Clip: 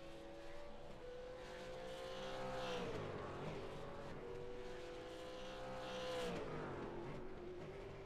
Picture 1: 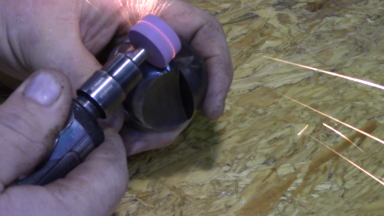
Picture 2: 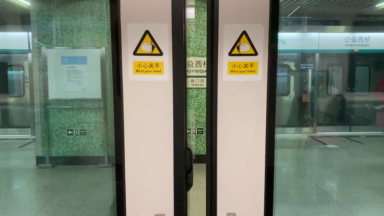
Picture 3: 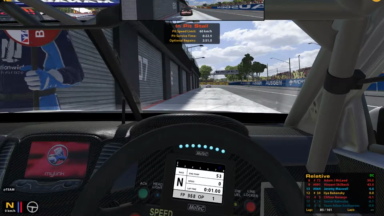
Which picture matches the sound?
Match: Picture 3